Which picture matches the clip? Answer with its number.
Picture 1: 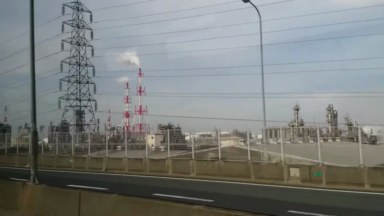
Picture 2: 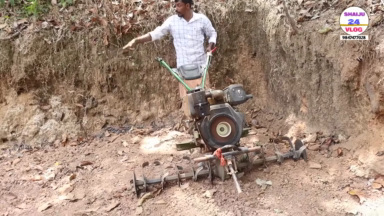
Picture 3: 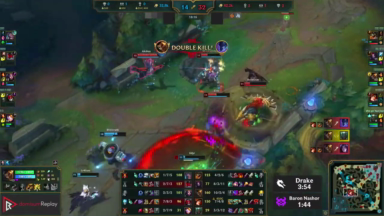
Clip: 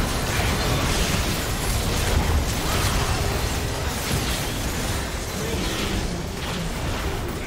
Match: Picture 3